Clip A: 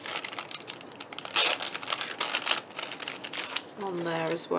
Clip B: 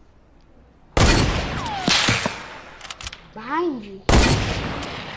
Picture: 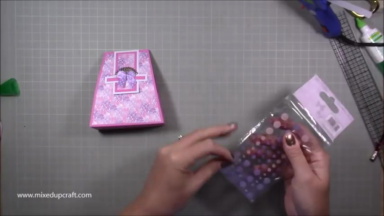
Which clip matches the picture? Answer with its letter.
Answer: A